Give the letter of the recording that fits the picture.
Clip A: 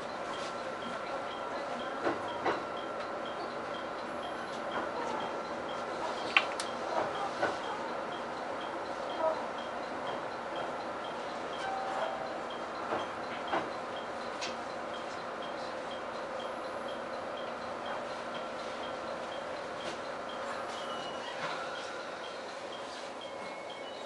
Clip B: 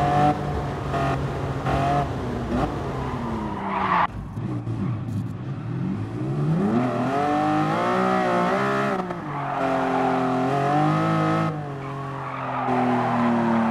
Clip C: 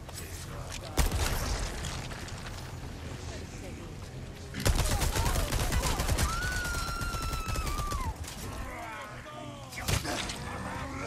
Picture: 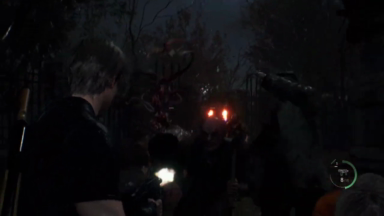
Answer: C